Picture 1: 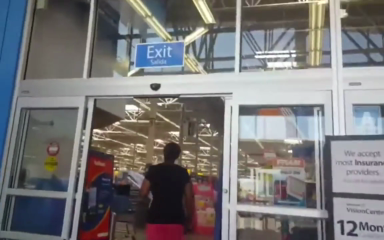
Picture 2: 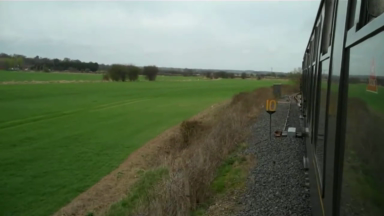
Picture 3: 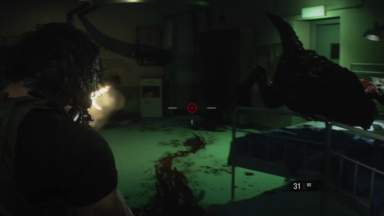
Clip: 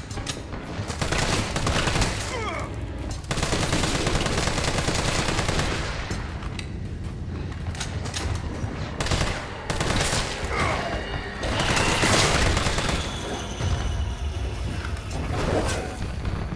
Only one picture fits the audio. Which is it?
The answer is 3